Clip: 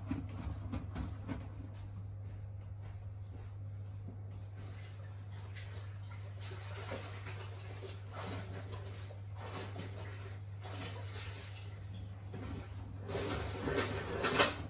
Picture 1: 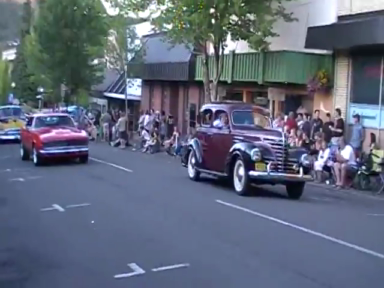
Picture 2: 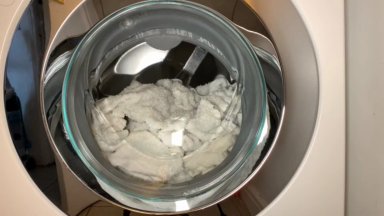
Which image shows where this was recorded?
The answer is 2